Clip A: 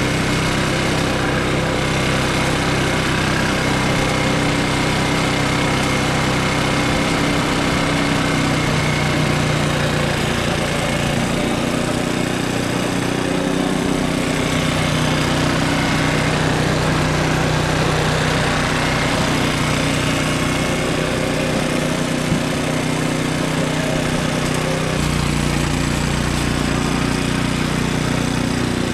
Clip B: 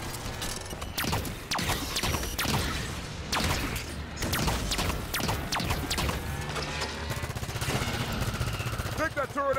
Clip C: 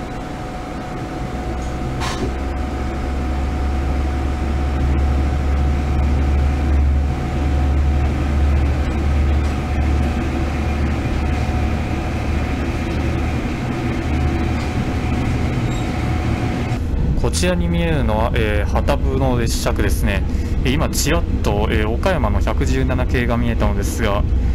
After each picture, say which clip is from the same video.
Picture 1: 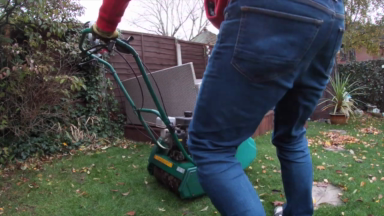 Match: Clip A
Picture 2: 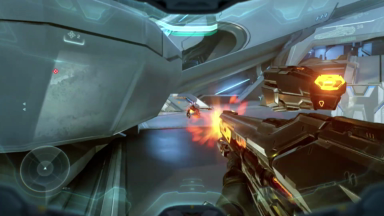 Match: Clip B